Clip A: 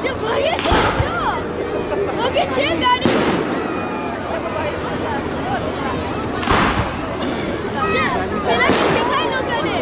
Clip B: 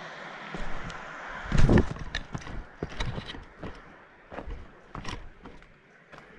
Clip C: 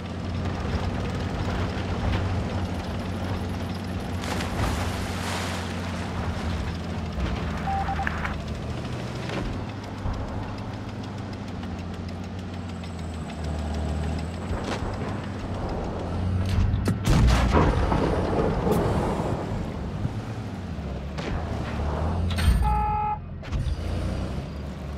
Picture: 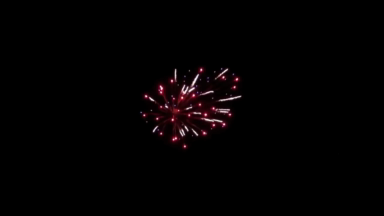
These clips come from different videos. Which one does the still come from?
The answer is A